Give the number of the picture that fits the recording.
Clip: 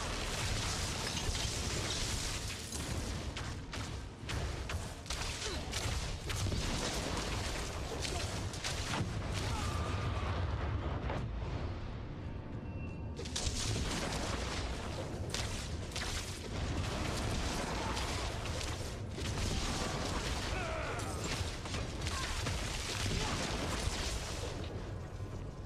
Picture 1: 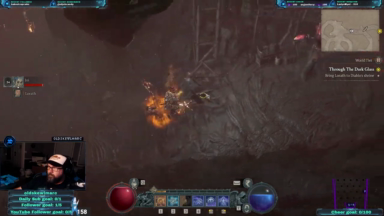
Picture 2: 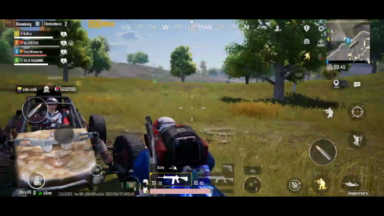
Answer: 1